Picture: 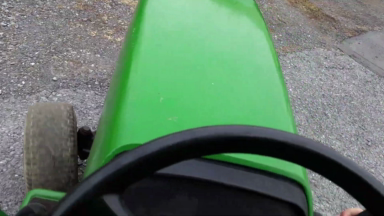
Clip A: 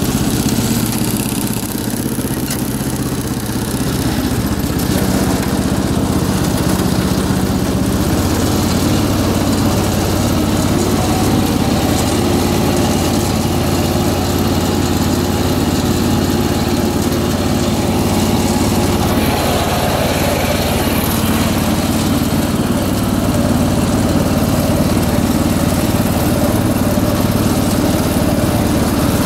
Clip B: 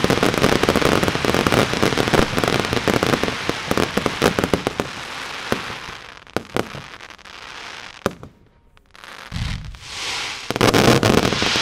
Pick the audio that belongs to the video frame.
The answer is A